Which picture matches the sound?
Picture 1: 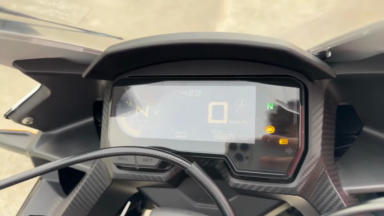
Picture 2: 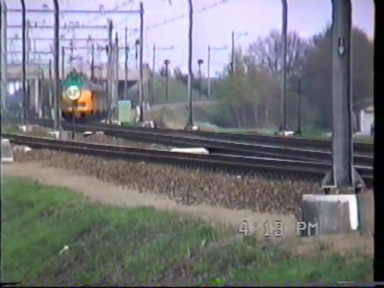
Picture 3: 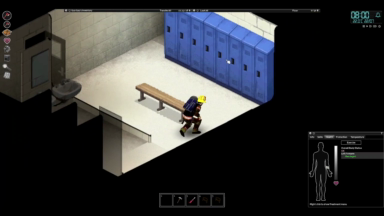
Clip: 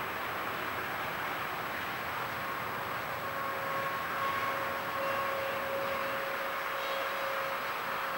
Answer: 2